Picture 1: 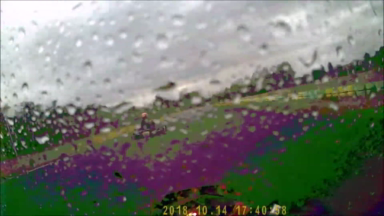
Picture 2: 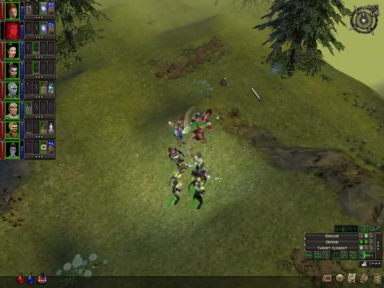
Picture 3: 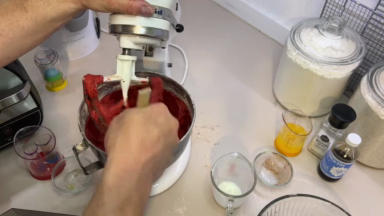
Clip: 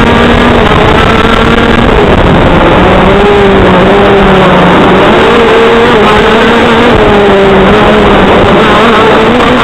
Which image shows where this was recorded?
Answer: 1